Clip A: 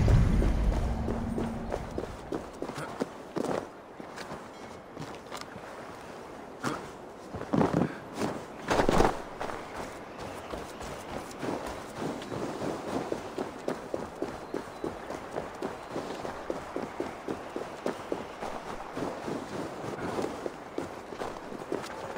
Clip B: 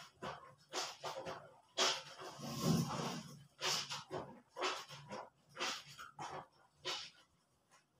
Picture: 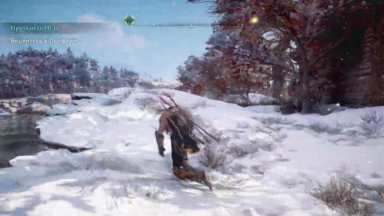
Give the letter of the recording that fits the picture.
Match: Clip A